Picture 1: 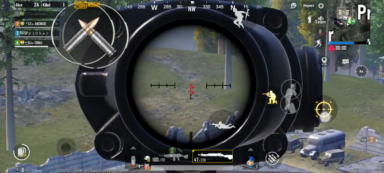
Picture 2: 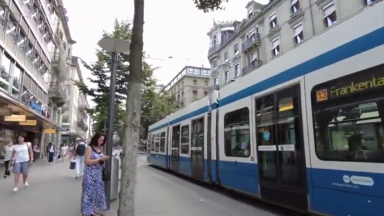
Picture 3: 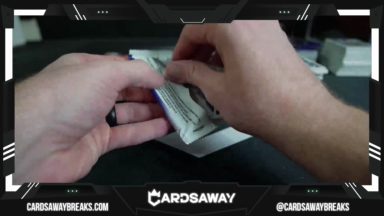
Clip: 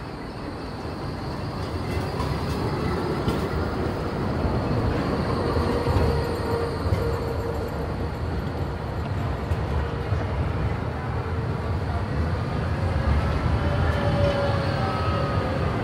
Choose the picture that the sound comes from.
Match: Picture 2